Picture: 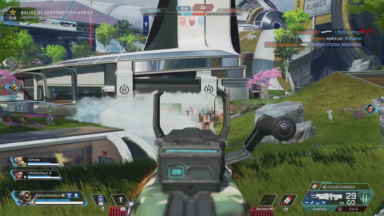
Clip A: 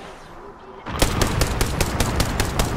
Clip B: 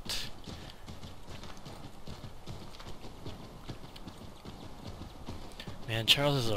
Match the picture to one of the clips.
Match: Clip A